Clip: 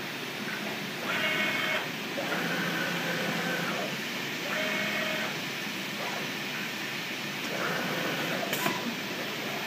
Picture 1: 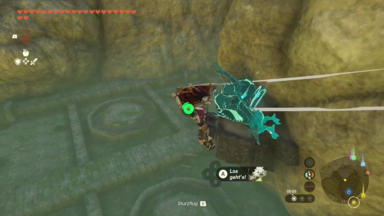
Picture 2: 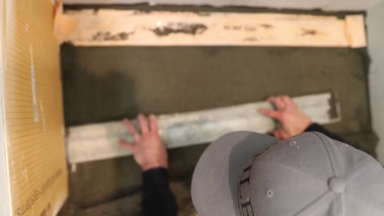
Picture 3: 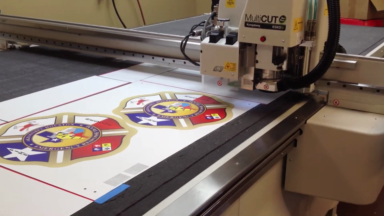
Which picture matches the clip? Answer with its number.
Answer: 3